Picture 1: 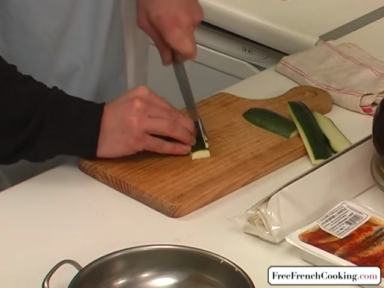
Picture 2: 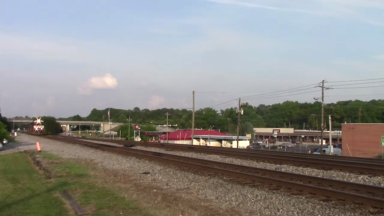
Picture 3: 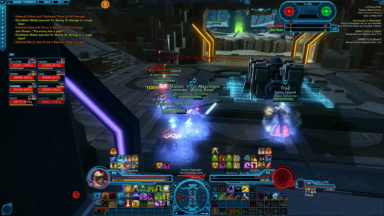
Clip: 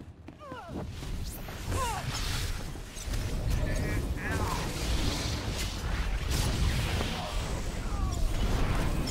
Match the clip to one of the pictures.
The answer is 3